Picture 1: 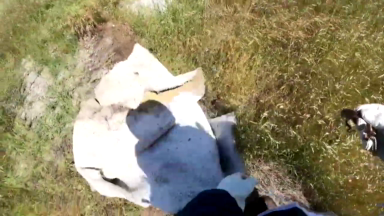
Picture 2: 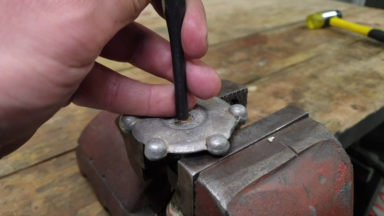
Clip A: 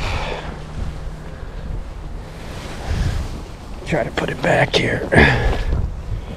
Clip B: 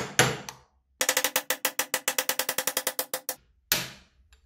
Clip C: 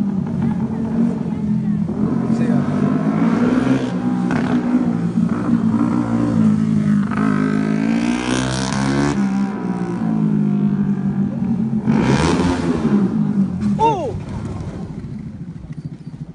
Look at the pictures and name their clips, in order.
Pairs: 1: A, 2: B